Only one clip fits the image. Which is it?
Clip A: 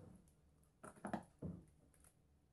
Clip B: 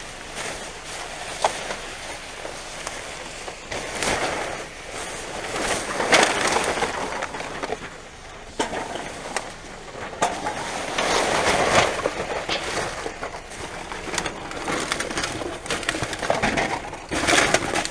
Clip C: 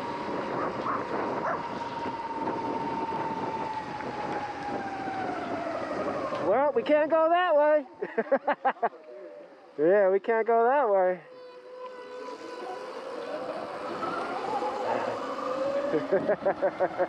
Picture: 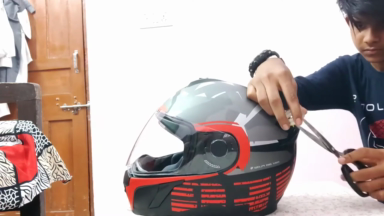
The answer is A